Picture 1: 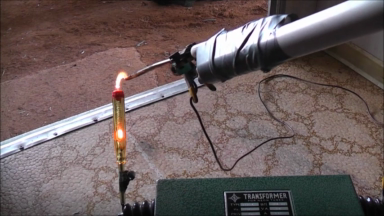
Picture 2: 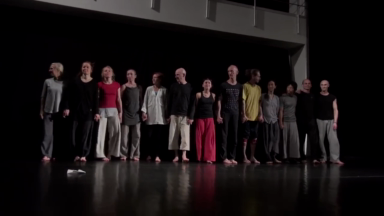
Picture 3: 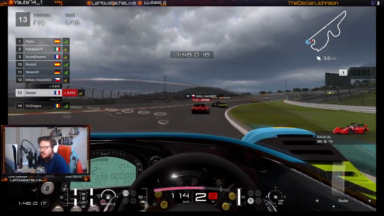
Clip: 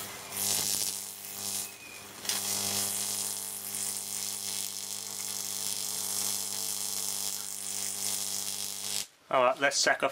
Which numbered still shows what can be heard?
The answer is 1